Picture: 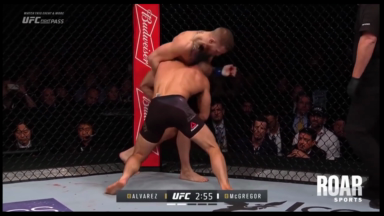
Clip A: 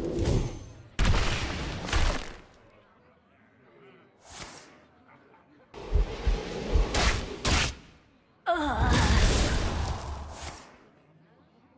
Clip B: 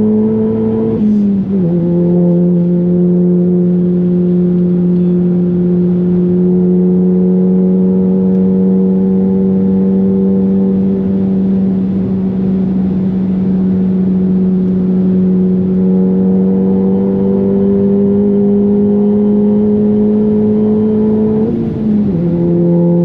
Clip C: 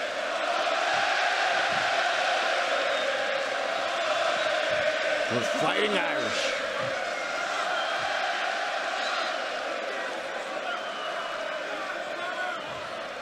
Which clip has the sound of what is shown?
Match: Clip C